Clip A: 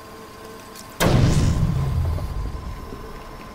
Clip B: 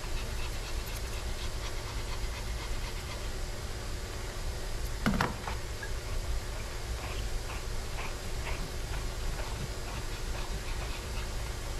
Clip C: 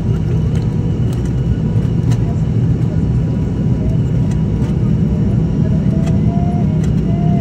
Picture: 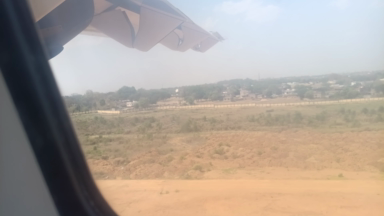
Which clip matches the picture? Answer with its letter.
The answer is C